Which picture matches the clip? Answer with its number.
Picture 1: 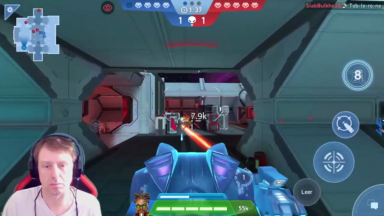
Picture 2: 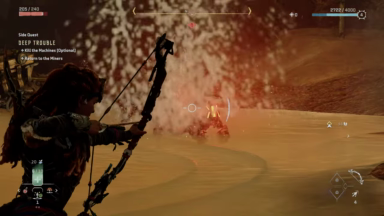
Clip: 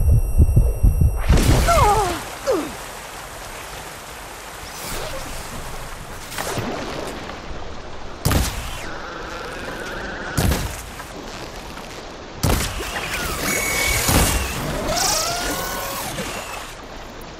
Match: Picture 2